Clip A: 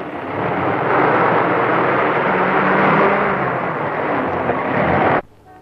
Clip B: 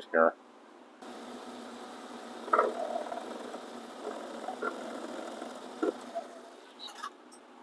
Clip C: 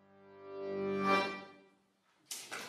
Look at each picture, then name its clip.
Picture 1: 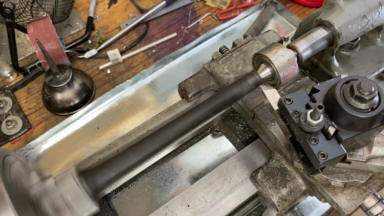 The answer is B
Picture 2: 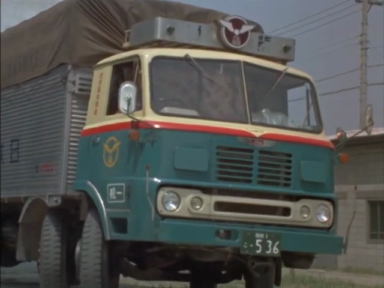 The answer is A